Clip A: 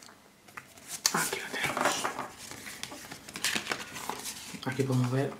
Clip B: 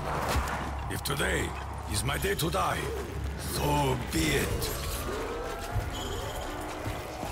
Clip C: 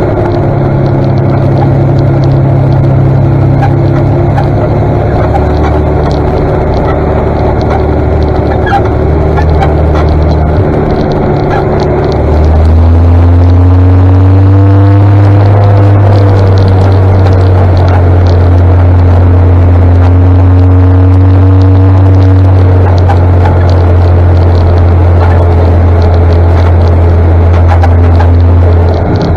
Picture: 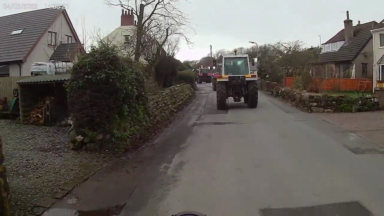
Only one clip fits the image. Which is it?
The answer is C